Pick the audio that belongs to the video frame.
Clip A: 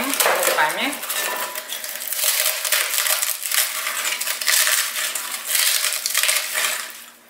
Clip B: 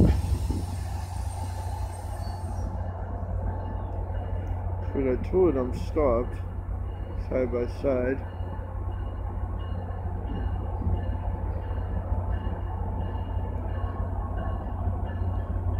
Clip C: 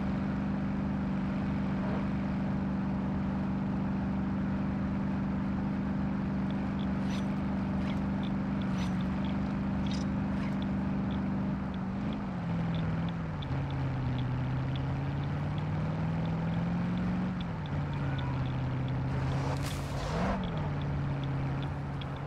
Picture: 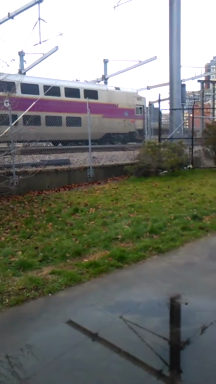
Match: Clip B